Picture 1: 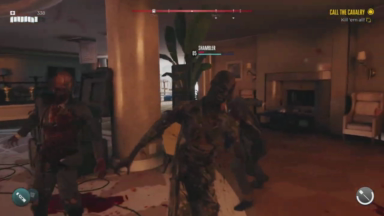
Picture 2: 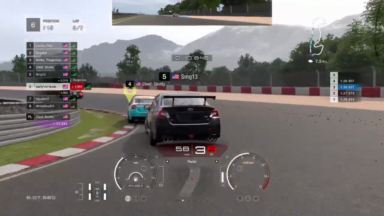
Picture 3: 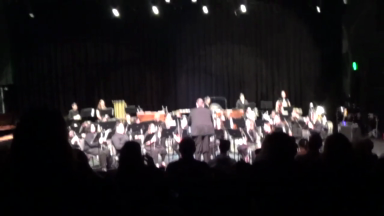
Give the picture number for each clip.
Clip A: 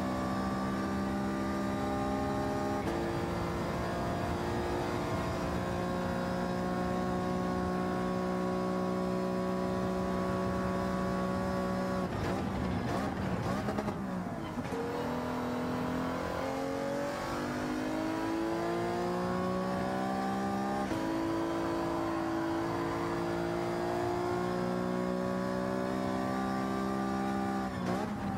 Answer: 2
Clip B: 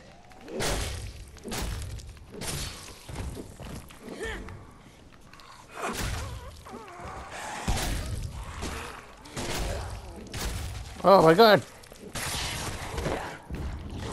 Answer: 1